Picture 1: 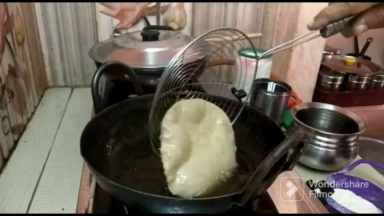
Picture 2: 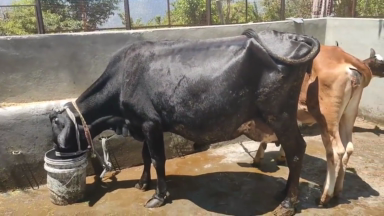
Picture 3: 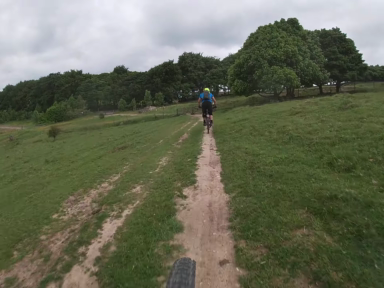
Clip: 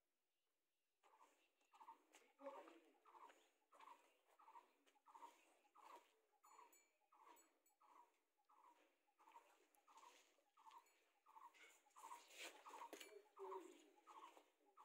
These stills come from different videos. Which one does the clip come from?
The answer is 2